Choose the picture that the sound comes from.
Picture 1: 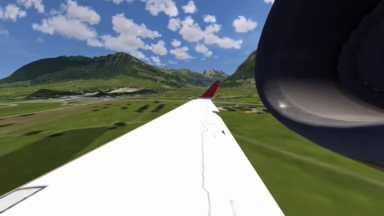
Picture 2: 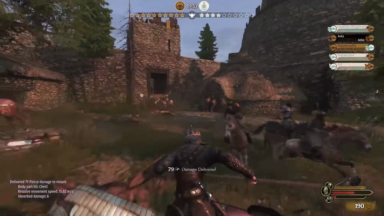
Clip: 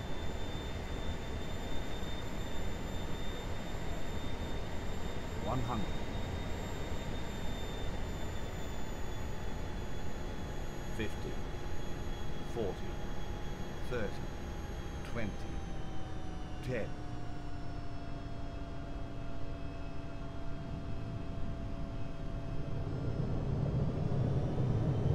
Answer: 1